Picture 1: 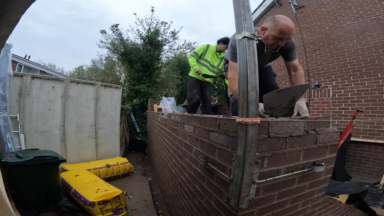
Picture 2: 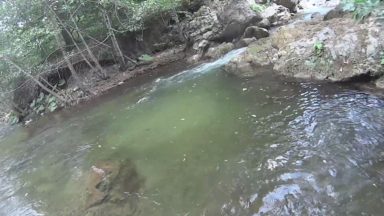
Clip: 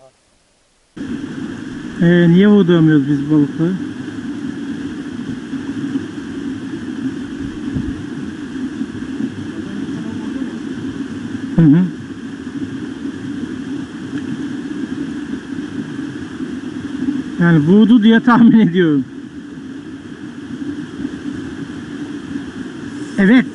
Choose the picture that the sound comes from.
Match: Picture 2